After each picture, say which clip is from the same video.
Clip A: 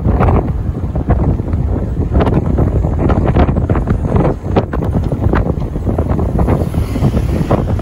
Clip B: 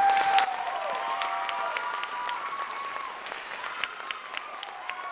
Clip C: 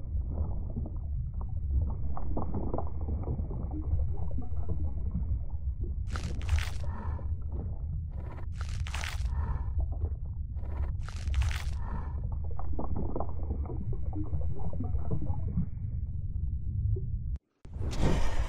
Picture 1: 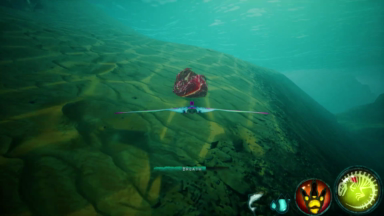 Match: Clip C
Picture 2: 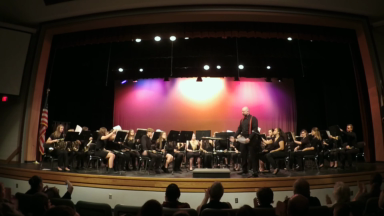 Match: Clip B